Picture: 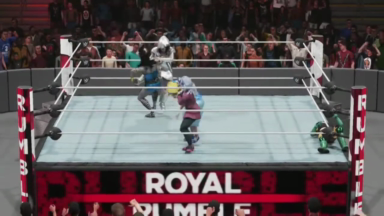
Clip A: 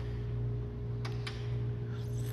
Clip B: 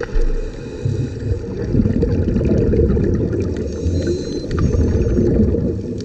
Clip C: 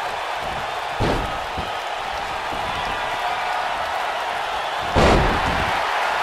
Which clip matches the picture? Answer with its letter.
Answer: C